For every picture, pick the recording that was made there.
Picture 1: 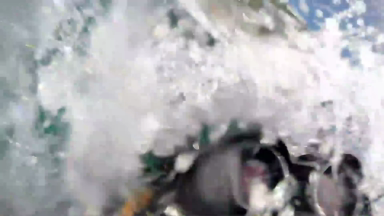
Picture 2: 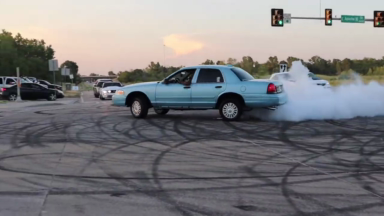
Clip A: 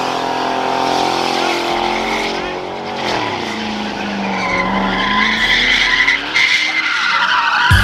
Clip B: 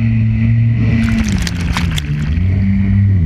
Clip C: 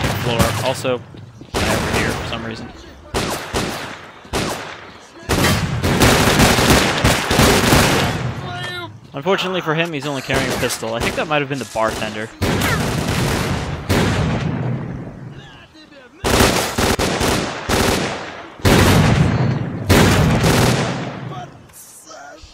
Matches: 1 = B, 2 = A